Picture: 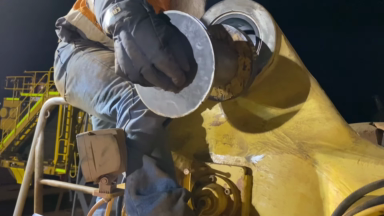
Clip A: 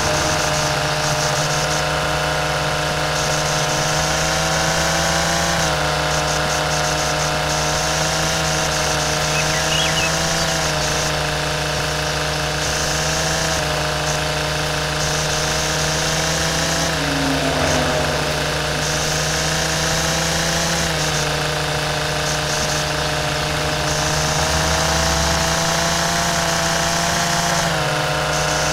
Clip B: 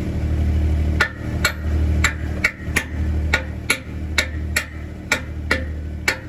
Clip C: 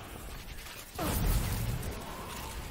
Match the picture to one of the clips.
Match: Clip B